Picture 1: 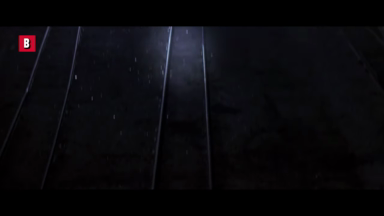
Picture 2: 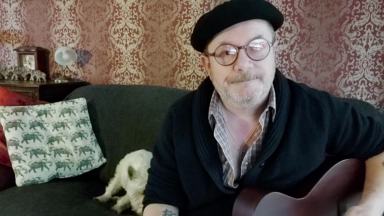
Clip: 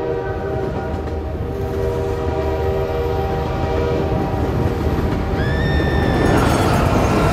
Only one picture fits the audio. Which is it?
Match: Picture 1